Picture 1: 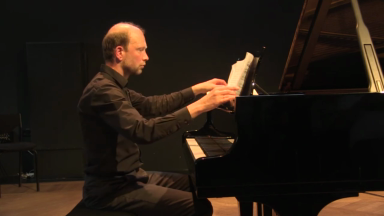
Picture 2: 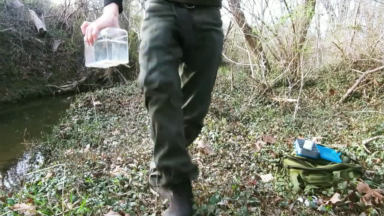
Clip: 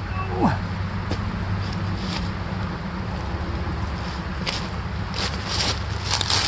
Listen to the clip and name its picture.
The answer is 2